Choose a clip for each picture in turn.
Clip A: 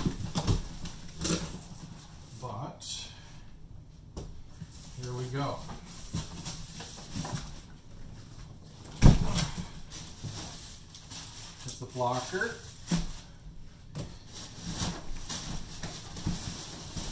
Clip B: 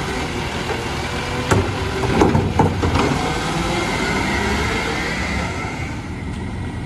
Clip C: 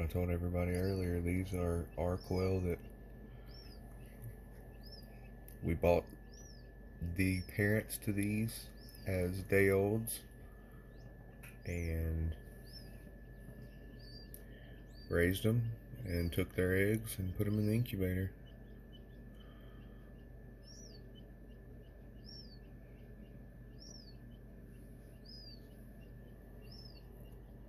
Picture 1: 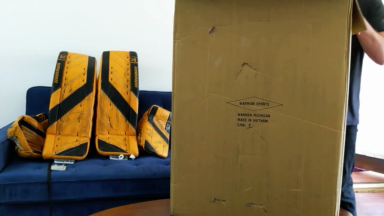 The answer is A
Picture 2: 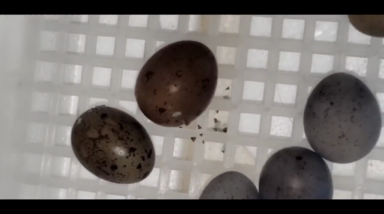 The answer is C